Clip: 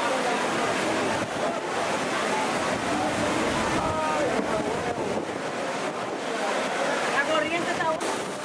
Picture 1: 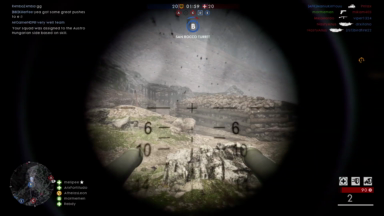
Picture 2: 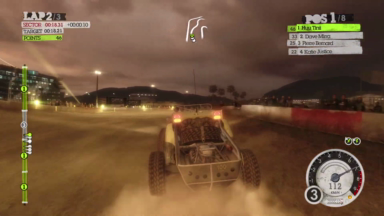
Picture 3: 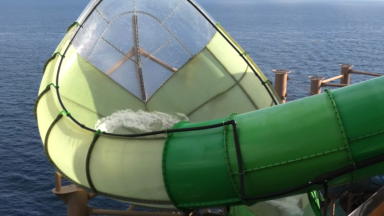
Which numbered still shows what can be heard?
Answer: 3